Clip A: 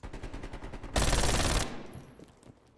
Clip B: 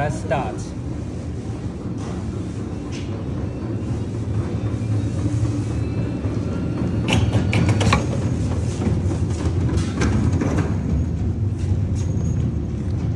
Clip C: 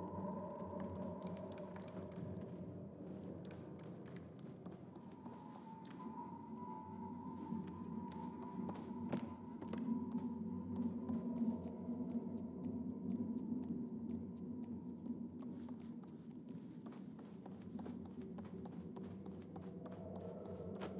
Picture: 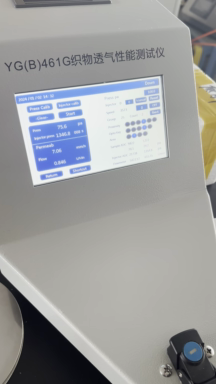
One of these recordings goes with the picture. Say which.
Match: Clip B